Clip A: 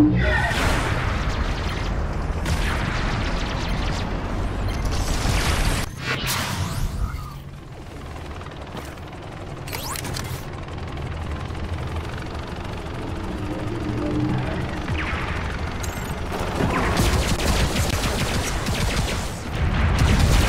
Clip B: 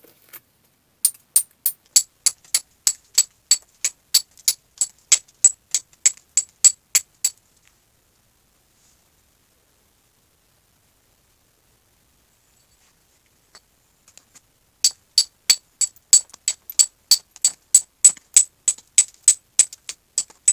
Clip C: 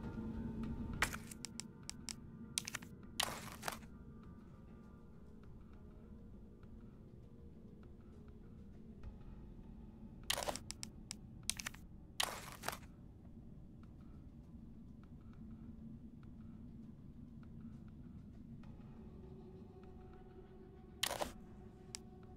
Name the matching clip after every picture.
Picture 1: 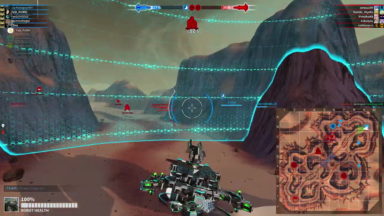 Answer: A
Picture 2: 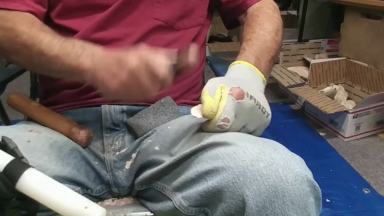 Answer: B